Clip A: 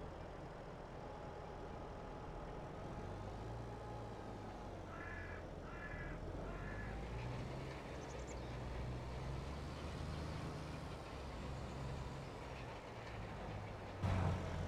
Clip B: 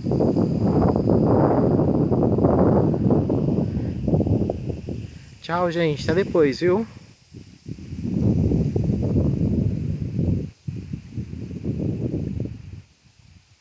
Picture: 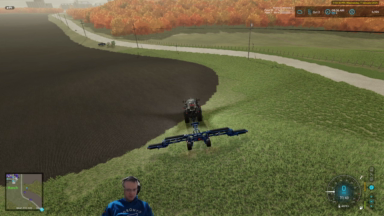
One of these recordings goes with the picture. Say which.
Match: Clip A